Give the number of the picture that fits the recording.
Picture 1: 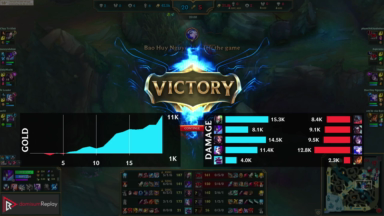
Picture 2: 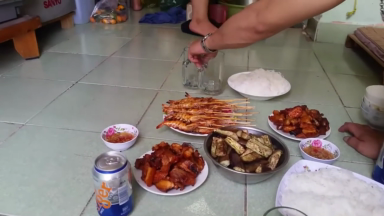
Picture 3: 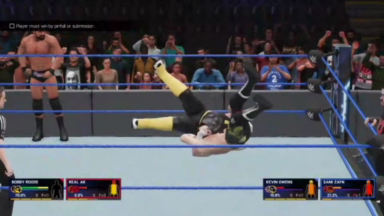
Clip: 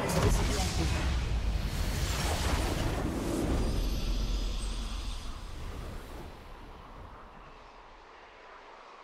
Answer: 1